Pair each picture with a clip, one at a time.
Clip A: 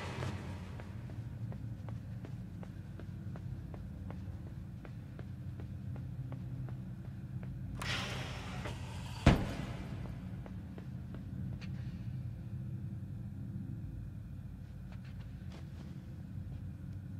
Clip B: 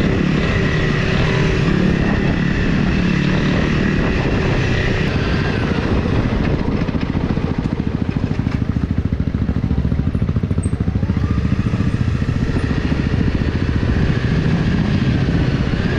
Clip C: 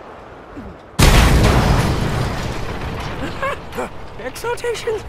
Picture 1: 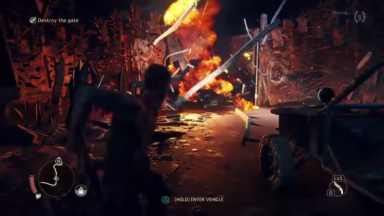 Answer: C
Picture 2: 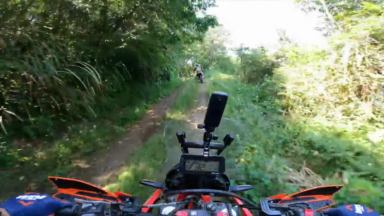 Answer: B